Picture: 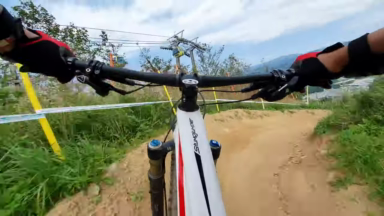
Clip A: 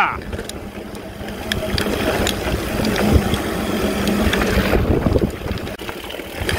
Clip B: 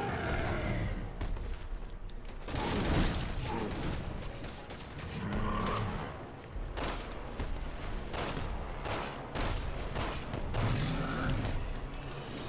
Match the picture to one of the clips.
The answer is A